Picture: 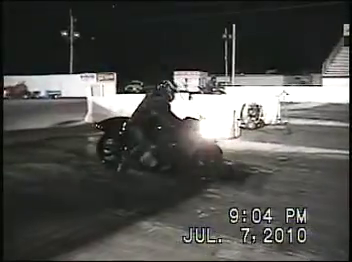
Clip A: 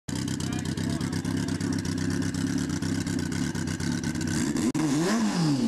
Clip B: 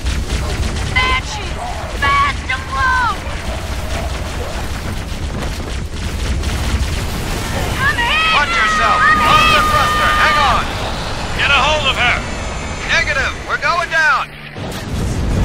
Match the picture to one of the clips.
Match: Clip A